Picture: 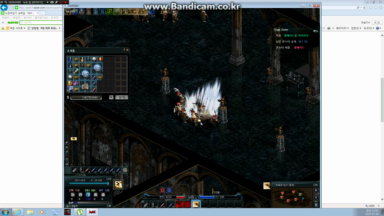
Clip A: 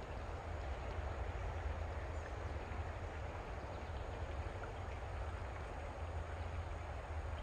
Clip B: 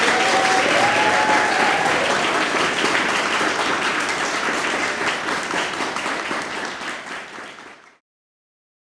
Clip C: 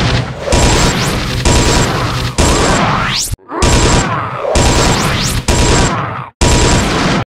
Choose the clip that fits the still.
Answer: C